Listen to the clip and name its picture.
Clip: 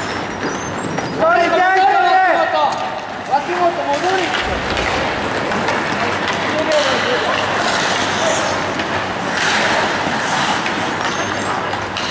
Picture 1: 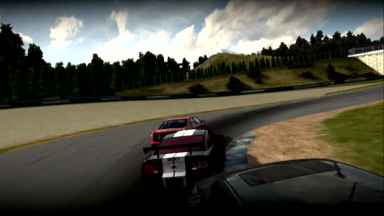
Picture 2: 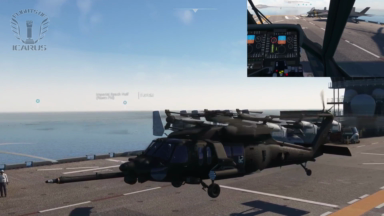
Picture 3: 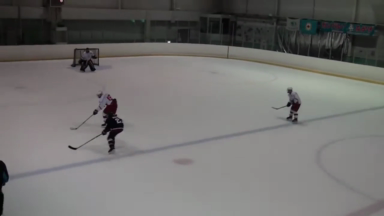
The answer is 3